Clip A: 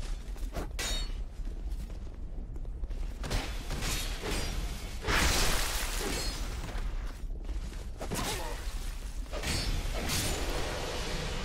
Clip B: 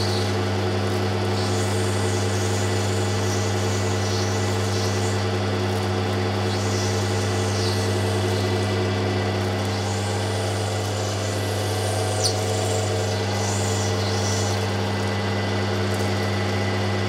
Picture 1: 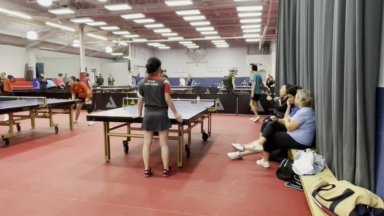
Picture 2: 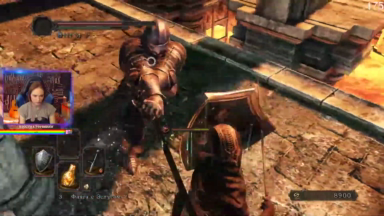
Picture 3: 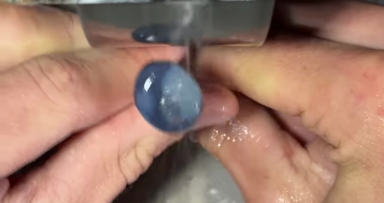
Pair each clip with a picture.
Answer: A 2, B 3